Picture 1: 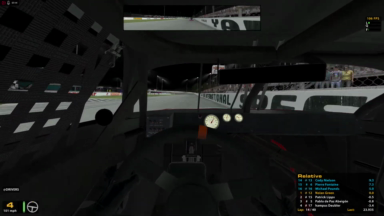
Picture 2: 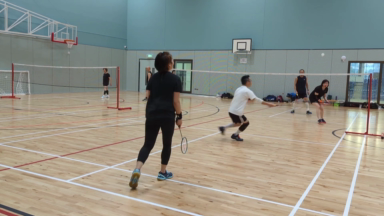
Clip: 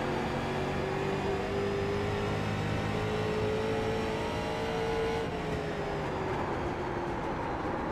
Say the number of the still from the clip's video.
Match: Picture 1